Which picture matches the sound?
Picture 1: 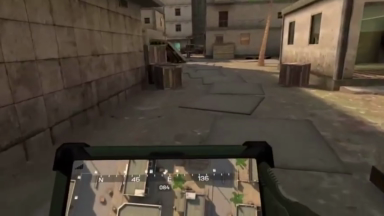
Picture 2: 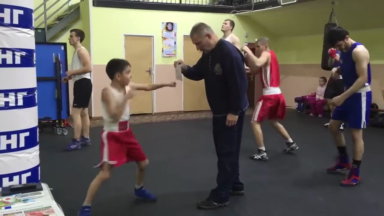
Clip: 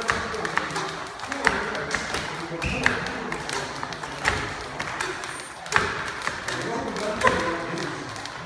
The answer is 2